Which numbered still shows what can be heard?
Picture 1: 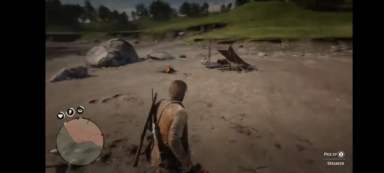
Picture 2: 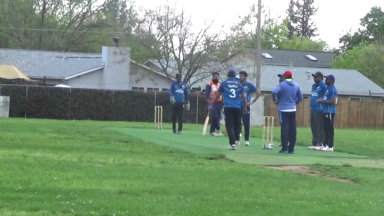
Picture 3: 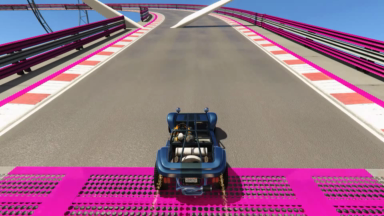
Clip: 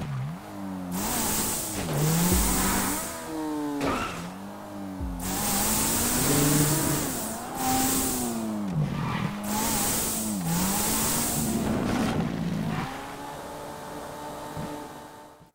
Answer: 3